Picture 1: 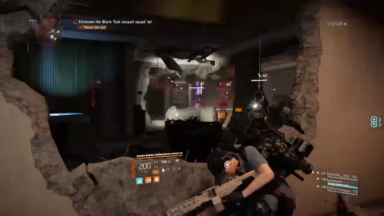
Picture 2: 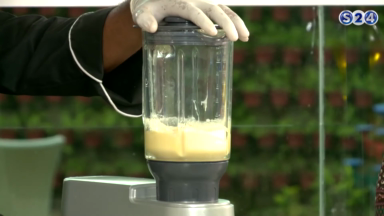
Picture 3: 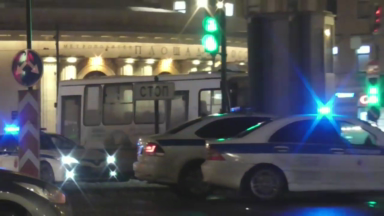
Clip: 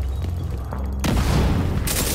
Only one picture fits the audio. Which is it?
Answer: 1